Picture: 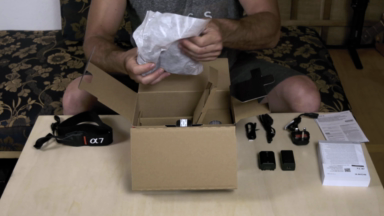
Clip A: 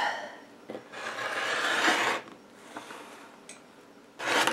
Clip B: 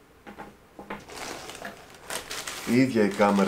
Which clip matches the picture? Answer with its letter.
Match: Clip B